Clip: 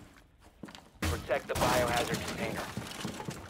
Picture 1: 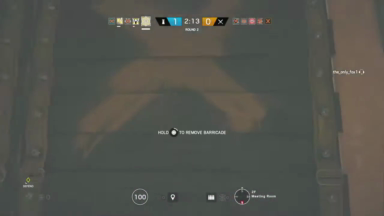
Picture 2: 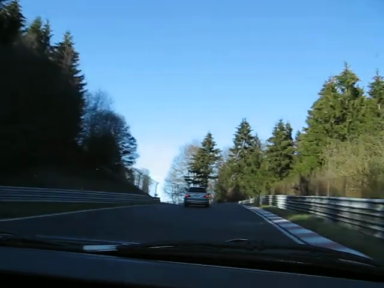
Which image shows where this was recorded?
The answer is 1